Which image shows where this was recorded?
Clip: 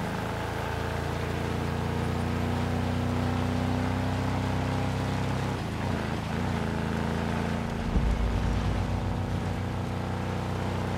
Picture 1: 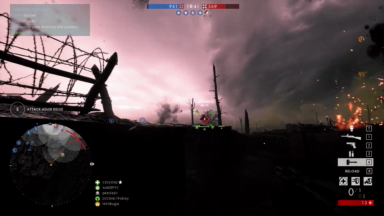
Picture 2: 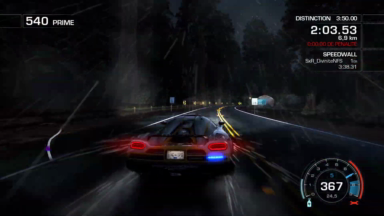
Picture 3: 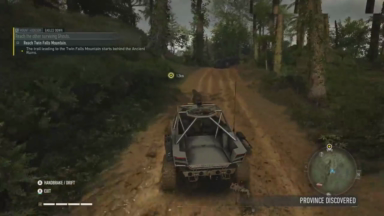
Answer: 3